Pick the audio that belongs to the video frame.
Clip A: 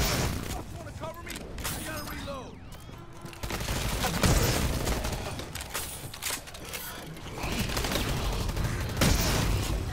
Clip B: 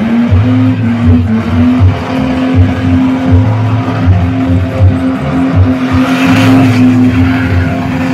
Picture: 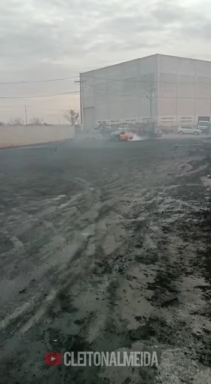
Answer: B